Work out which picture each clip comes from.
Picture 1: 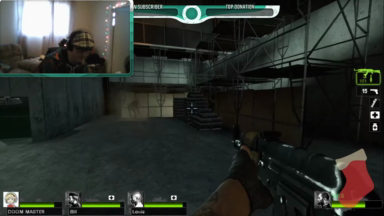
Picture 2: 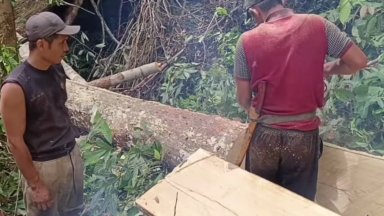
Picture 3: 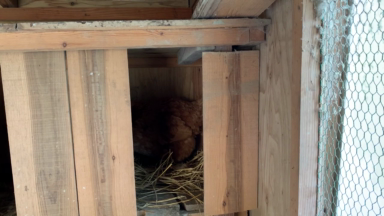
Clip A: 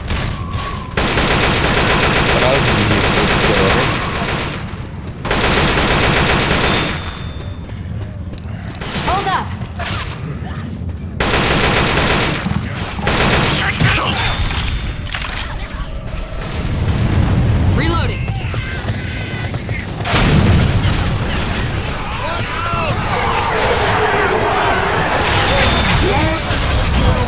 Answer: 1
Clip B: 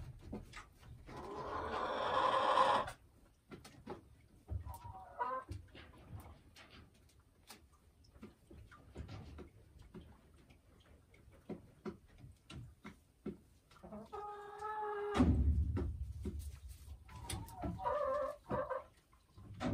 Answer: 3